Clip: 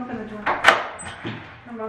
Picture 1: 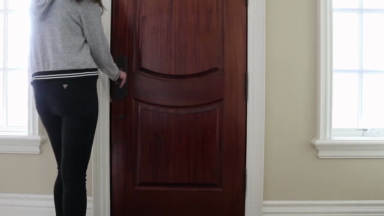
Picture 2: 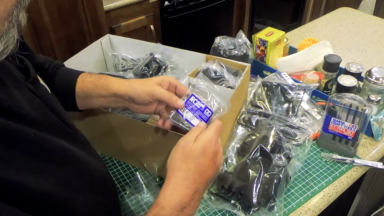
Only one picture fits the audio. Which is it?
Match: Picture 1